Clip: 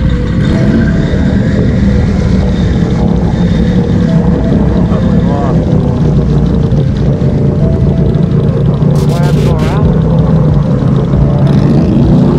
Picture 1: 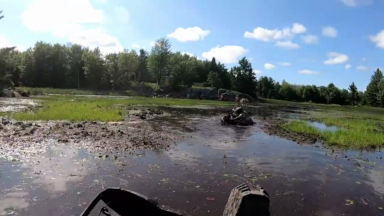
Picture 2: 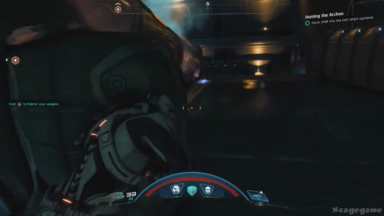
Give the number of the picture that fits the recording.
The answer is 1